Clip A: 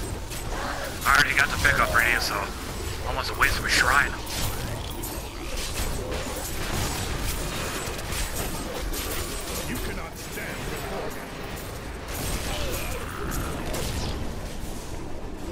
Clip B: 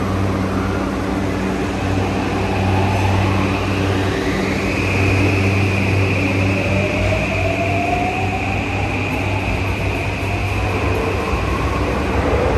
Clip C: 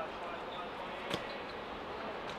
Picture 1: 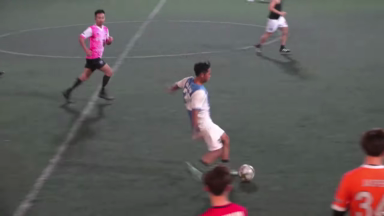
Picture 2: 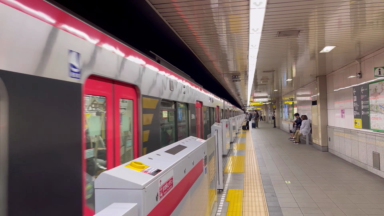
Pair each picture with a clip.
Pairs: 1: C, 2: B